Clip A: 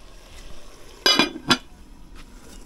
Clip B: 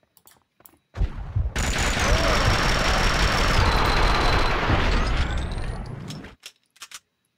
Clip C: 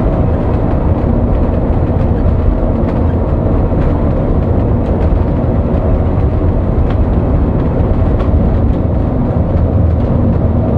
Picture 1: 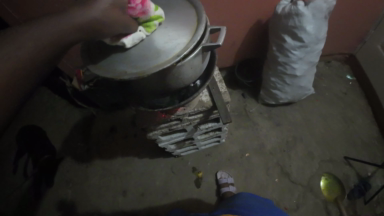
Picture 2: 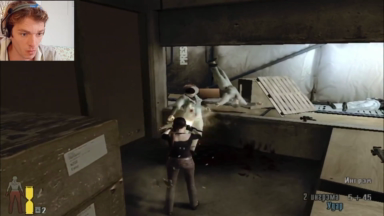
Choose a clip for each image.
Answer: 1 A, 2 B